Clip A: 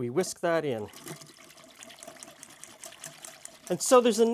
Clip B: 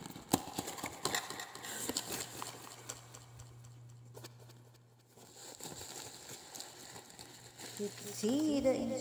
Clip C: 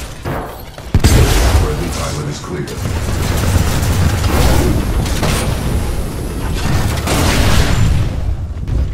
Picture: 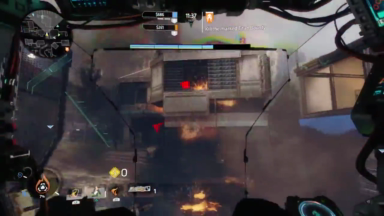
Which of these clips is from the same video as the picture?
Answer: C